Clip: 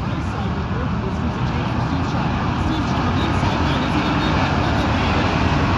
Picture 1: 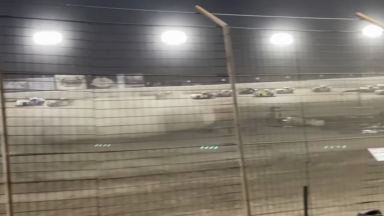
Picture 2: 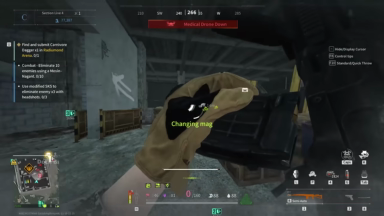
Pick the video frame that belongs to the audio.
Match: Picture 1